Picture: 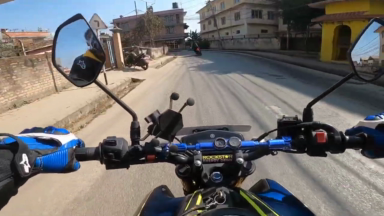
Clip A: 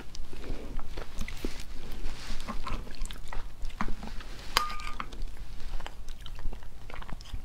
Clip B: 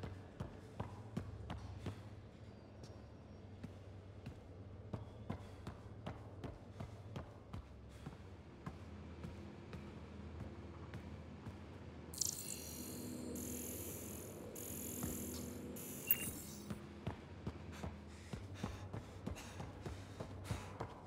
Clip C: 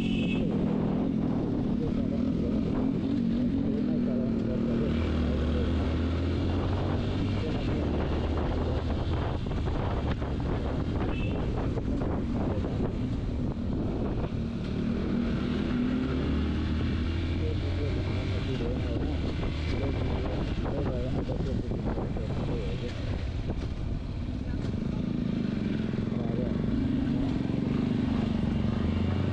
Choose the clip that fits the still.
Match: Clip C